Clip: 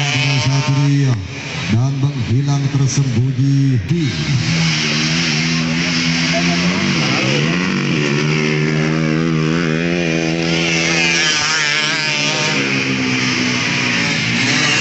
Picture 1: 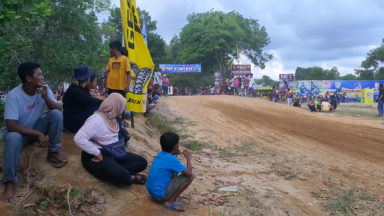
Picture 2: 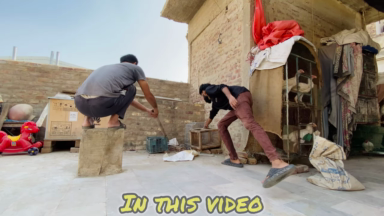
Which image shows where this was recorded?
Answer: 1